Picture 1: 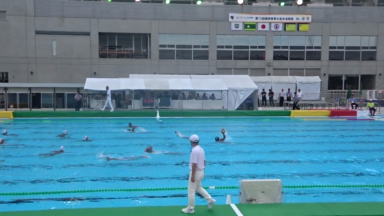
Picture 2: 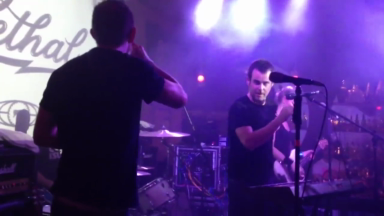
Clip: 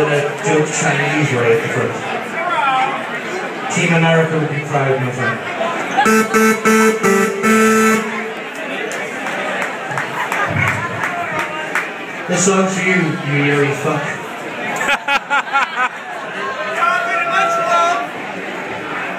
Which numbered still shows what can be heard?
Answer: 2